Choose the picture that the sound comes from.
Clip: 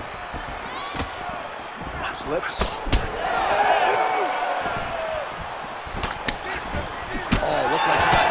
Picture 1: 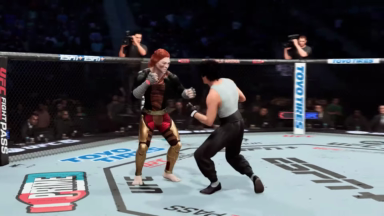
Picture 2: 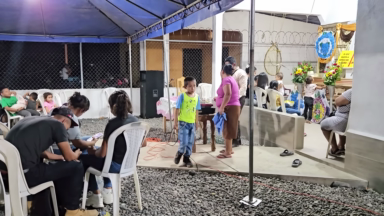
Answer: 1